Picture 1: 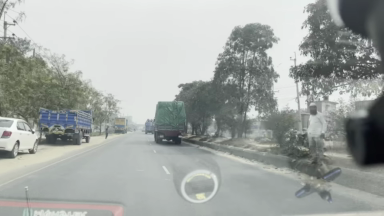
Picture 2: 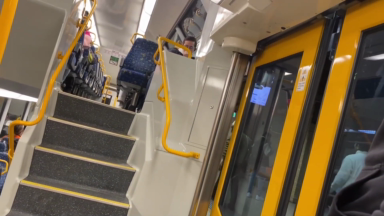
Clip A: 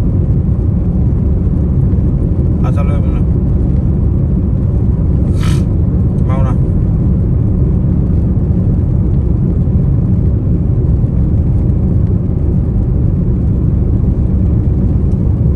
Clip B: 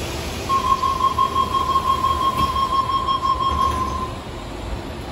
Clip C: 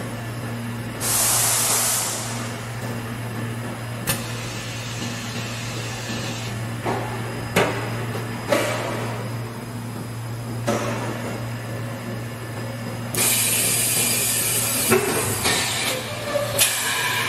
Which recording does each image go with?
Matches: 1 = A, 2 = B